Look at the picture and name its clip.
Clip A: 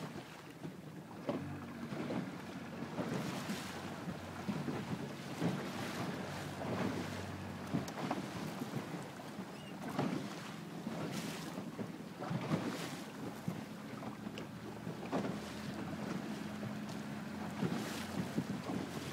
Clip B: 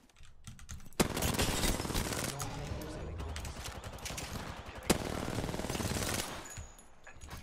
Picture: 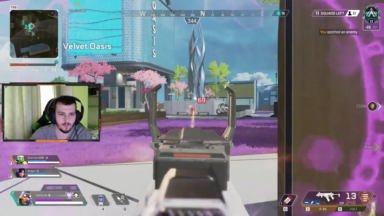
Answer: B